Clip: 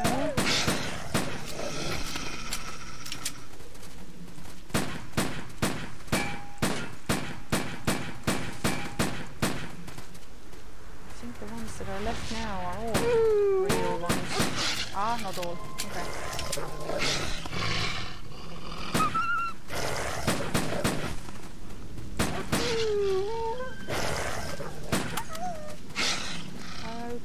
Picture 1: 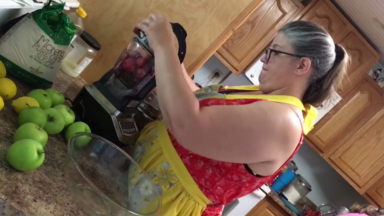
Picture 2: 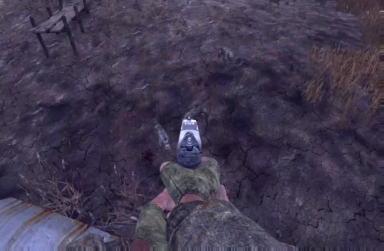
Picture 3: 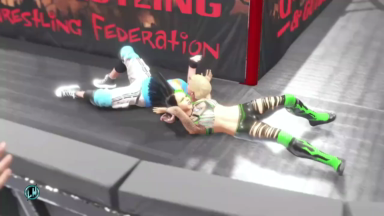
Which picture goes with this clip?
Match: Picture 2